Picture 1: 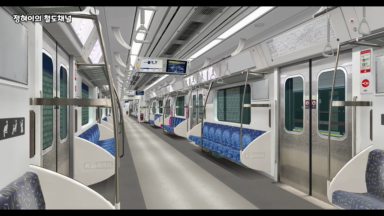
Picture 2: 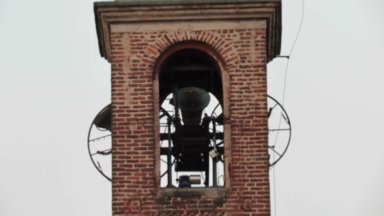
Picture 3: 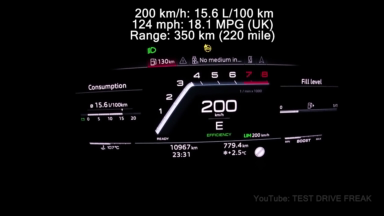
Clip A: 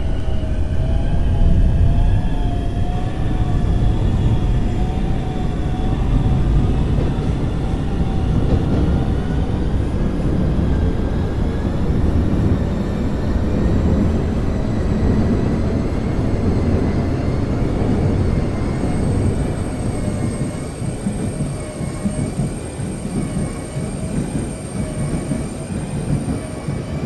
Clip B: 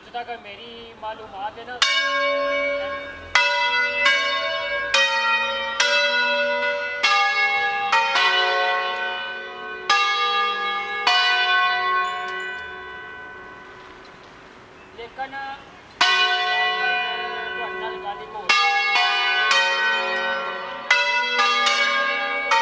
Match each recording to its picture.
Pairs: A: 1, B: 2